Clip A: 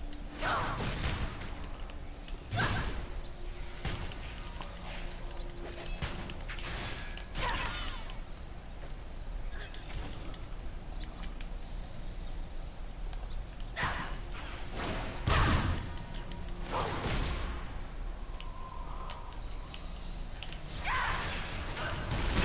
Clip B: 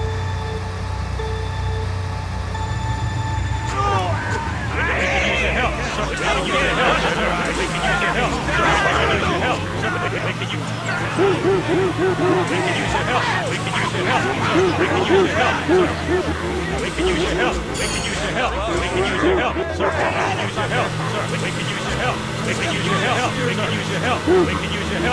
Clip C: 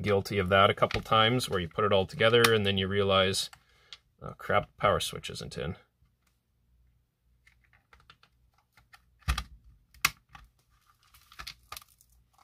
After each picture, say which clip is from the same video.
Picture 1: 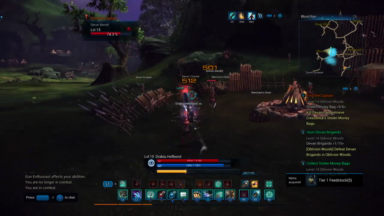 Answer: A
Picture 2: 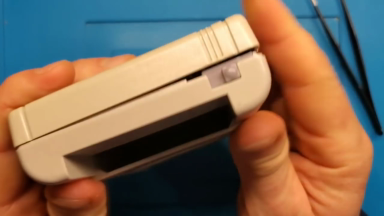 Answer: C